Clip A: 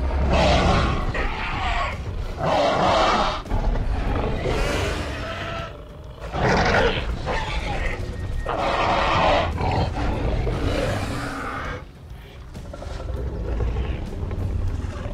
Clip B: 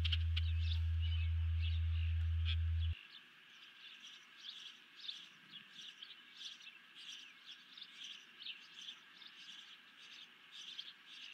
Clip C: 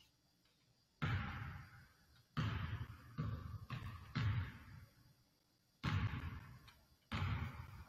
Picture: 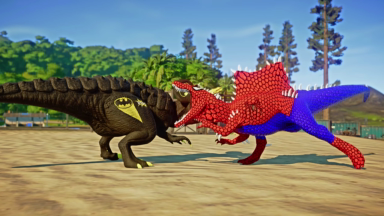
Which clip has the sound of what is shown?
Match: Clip A